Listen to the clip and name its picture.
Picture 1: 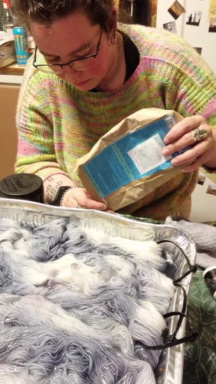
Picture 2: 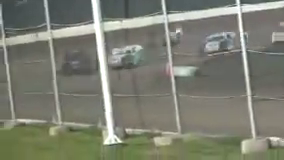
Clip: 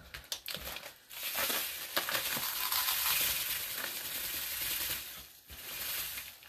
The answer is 1